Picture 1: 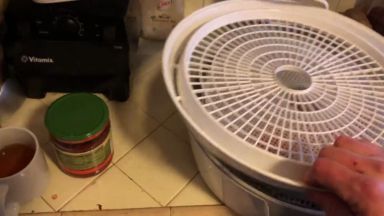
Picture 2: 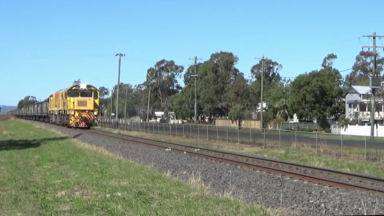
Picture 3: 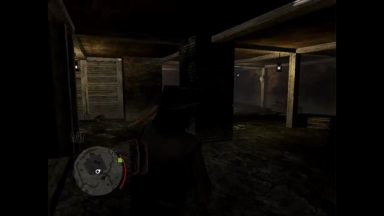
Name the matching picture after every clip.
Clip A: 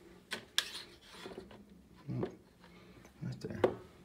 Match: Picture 1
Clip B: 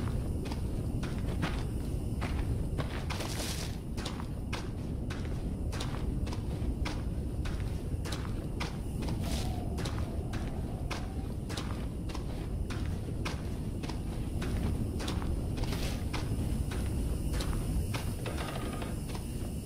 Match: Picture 3